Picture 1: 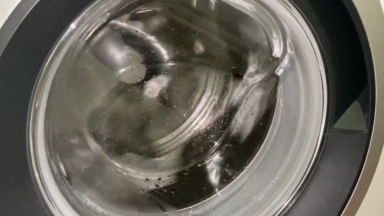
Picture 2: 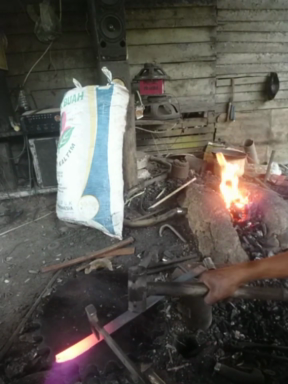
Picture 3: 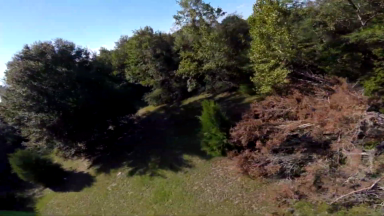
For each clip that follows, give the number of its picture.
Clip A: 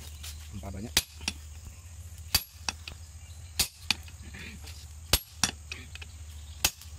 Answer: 2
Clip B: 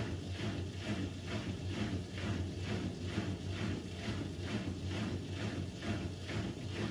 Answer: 1